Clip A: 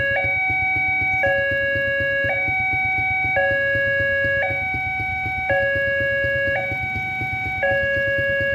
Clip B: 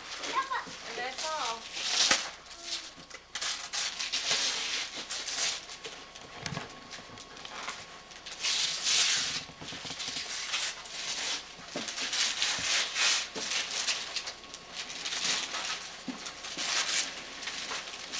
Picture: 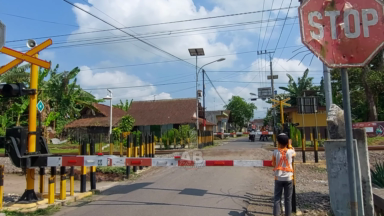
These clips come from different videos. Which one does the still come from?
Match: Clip A